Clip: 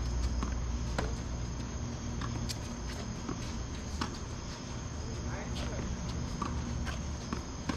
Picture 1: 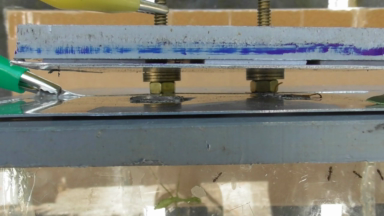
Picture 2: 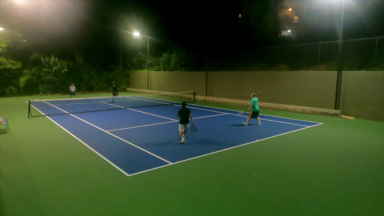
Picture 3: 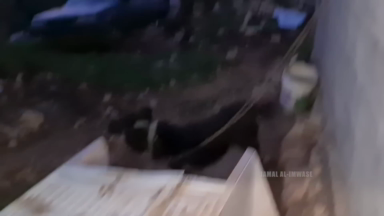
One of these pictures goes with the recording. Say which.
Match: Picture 2